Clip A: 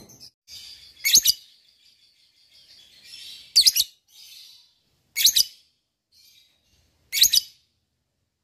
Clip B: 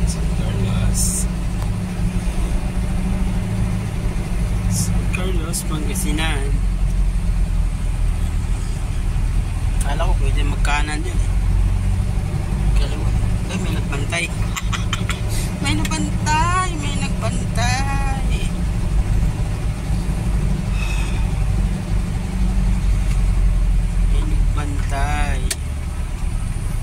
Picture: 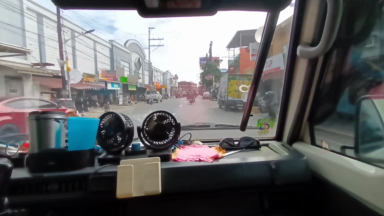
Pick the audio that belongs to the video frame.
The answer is B